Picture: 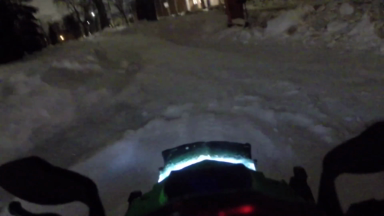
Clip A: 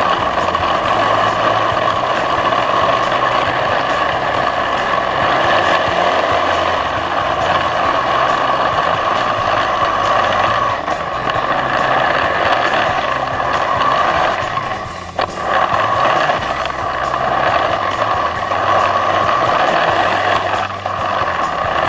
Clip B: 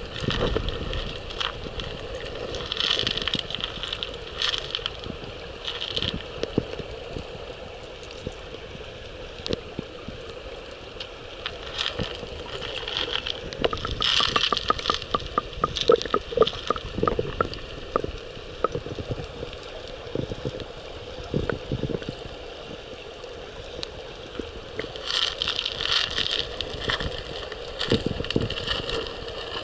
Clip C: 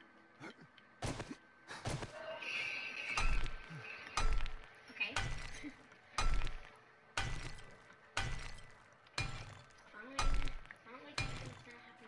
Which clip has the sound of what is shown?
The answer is A